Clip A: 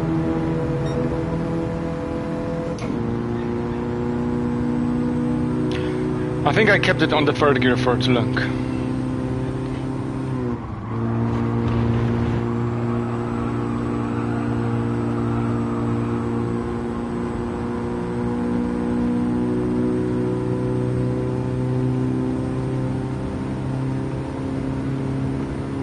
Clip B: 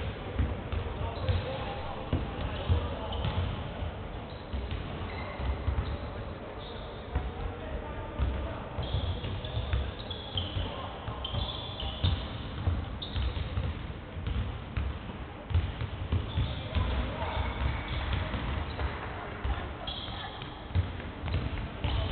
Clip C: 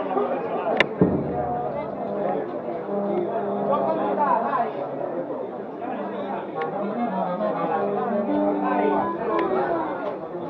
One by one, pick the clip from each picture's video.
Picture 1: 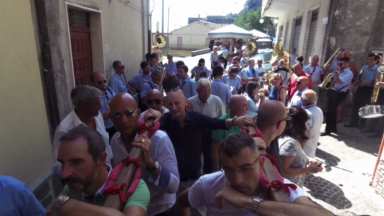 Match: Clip C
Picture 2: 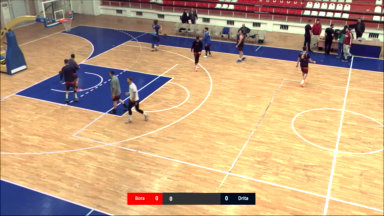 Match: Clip B